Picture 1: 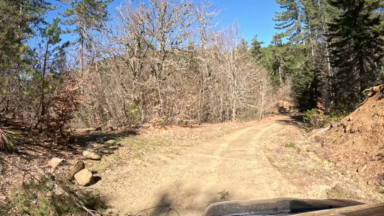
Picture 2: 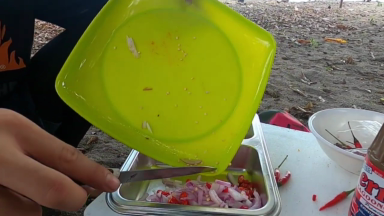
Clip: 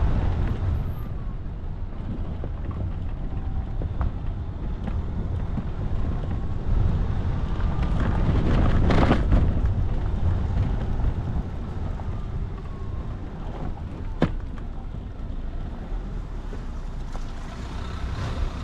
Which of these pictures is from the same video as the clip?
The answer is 1